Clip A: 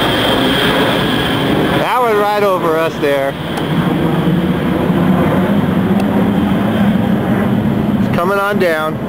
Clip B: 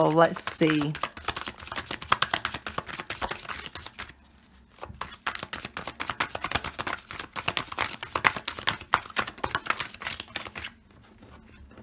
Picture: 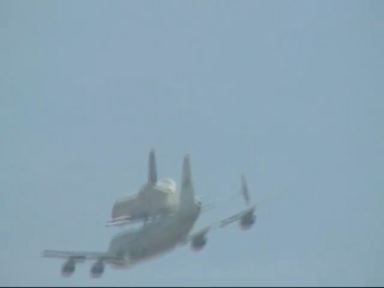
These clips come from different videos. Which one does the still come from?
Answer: A